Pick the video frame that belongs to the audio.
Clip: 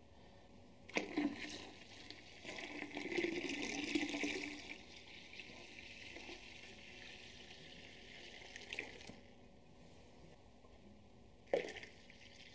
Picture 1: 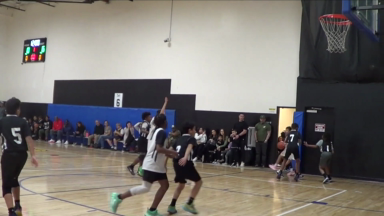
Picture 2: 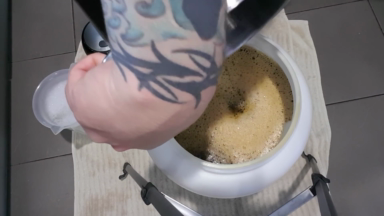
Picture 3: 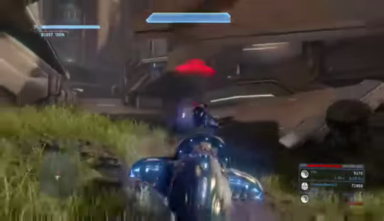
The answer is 2